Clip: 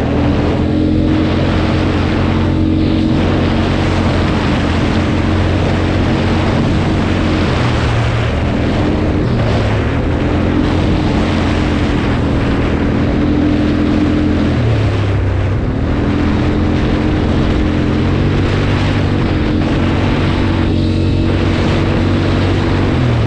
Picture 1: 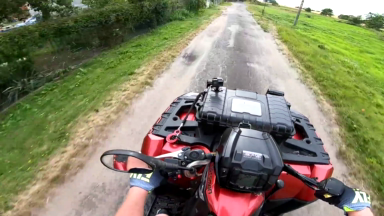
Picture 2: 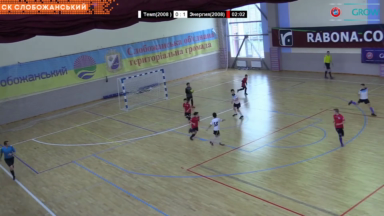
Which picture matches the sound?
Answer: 1